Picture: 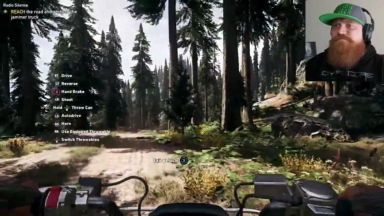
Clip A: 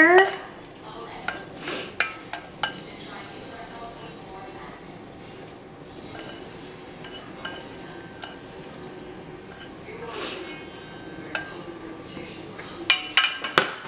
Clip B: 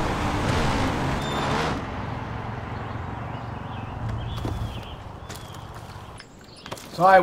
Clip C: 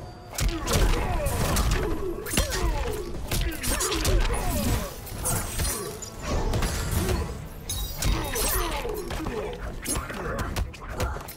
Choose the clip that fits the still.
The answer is B